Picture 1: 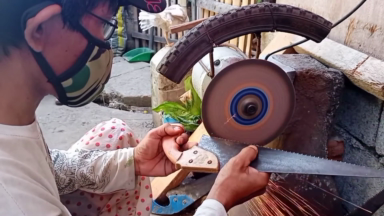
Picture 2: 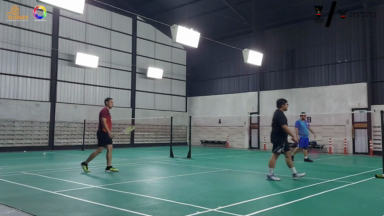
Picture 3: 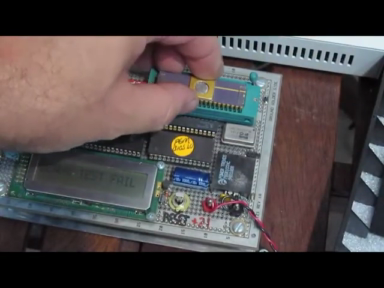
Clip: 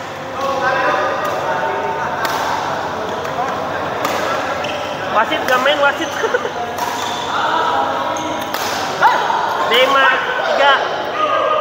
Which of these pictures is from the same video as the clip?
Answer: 2